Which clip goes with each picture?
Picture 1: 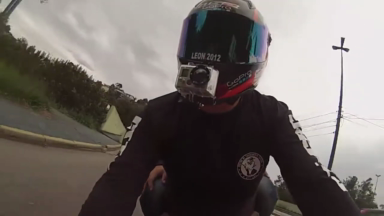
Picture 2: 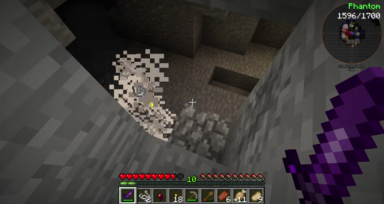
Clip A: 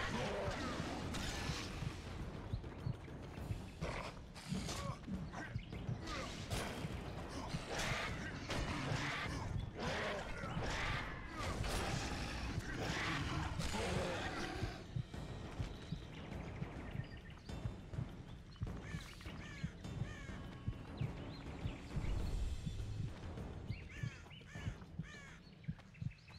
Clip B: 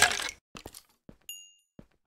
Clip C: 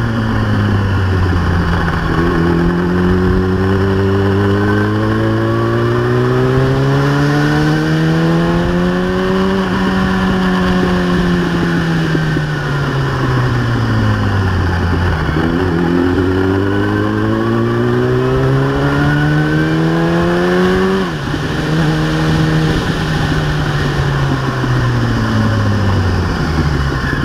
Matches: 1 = C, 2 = B